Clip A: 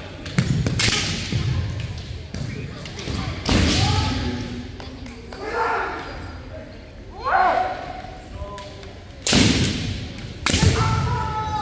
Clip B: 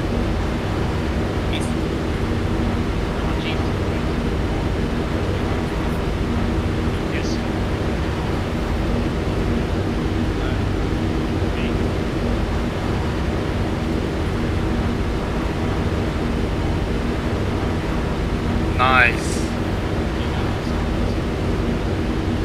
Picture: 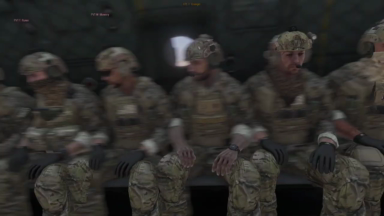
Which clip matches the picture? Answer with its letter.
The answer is B